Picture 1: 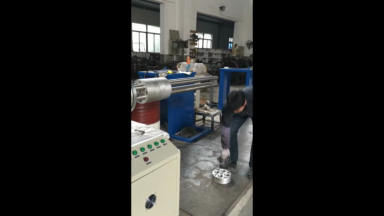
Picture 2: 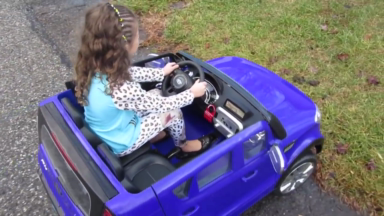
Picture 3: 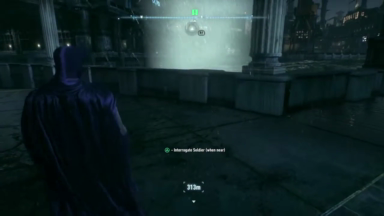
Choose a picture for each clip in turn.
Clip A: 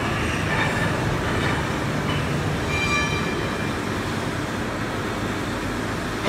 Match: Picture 1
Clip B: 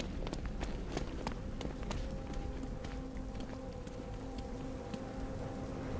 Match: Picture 3